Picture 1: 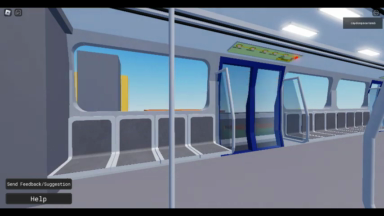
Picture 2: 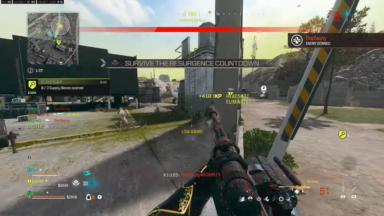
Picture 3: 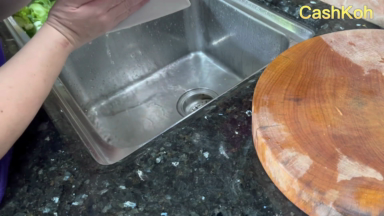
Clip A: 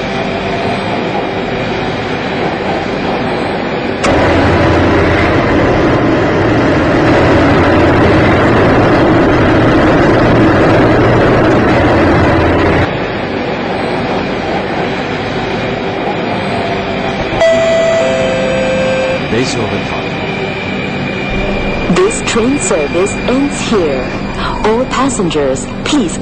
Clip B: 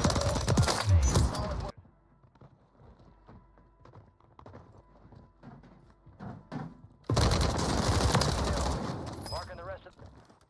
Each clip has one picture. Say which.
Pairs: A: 1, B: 2